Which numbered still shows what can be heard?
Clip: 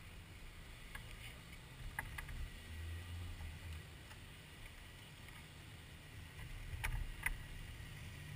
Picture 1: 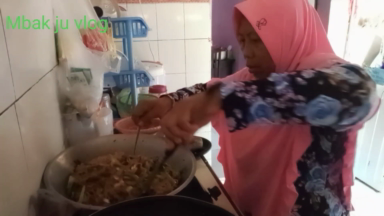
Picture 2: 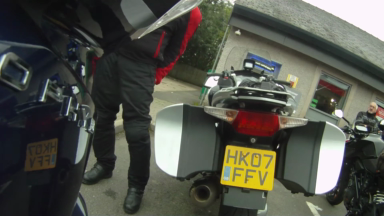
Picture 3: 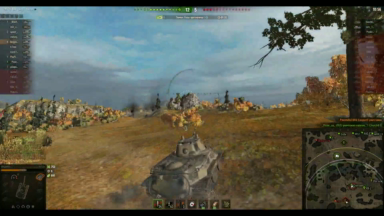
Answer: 2